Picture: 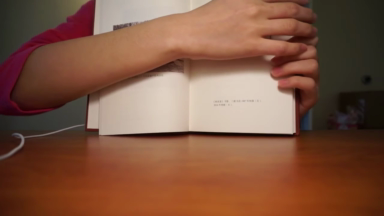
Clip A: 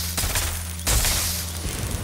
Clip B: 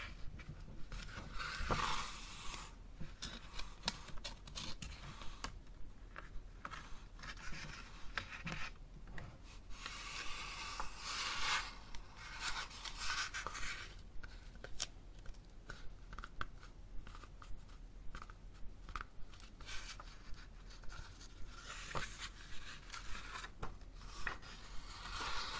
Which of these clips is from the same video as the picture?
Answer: B